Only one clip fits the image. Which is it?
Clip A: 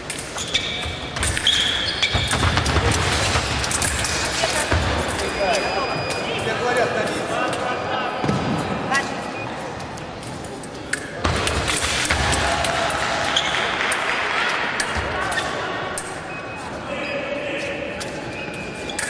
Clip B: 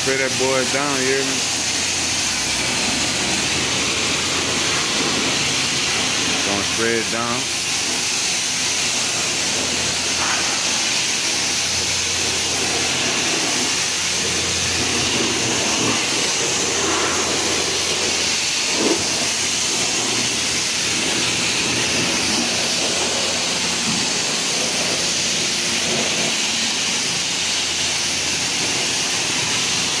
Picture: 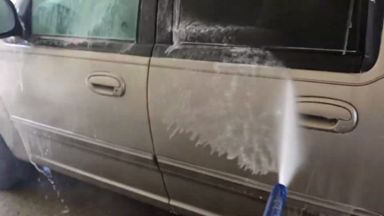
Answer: B